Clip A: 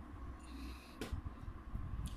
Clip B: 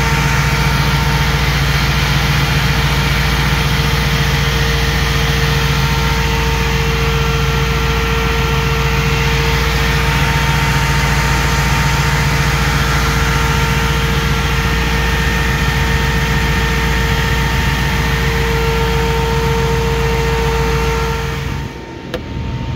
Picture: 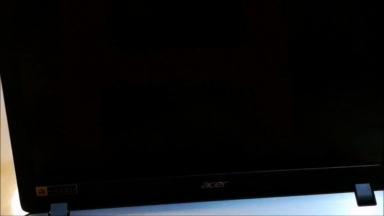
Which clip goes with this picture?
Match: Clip A